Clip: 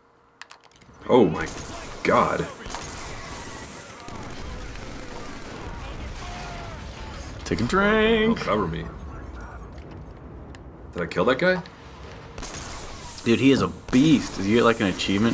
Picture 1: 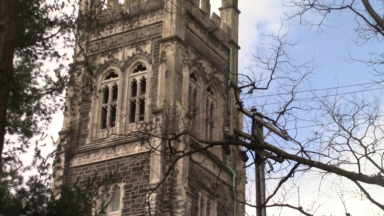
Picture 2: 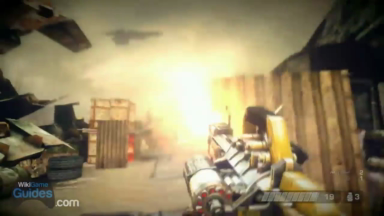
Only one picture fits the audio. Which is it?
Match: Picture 2